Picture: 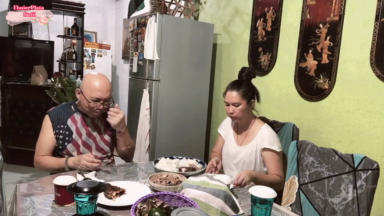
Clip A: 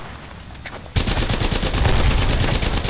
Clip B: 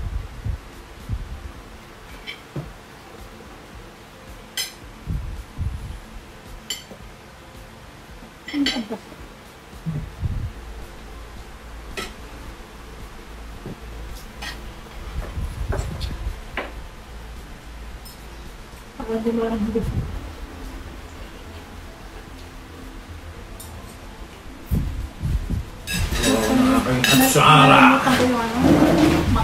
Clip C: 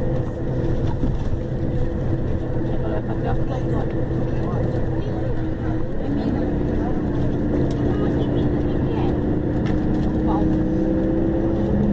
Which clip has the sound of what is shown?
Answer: B